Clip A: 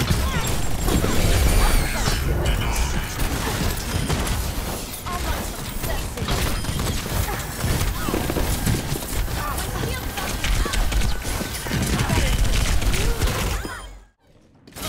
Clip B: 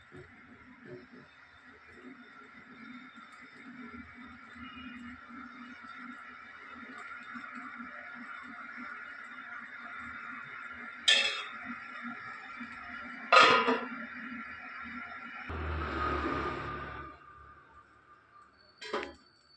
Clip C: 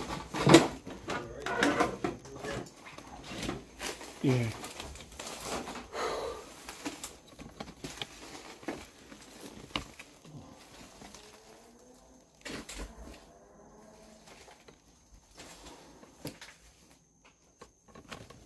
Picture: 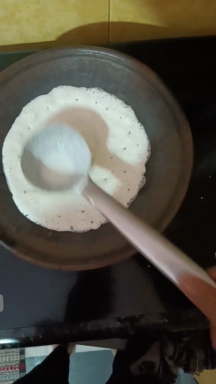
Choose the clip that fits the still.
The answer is B